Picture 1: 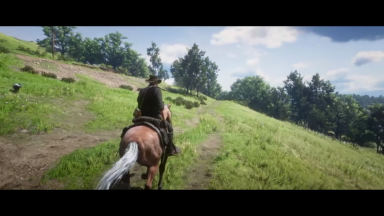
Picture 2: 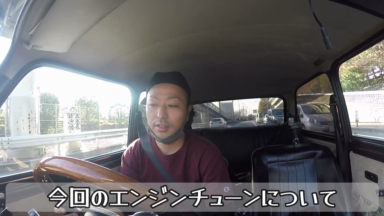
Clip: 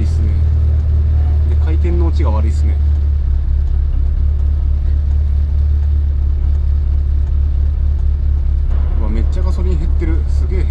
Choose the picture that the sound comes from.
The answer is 2